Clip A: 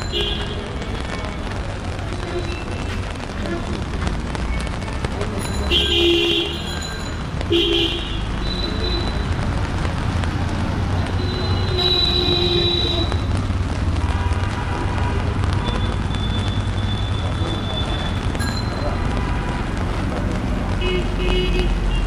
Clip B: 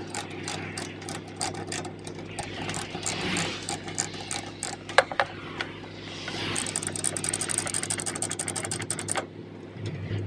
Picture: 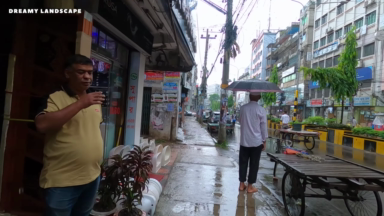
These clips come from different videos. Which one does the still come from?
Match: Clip A